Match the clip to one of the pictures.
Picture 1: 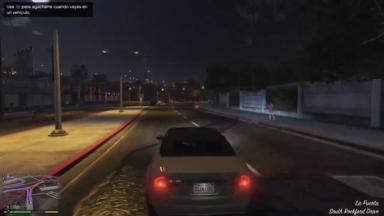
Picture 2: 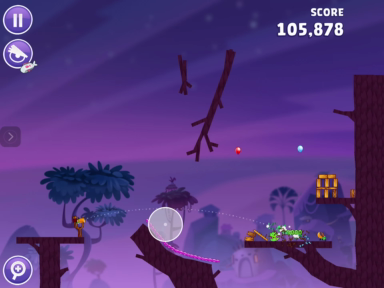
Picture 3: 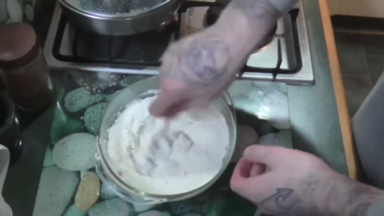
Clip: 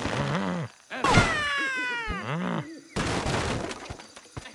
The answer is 2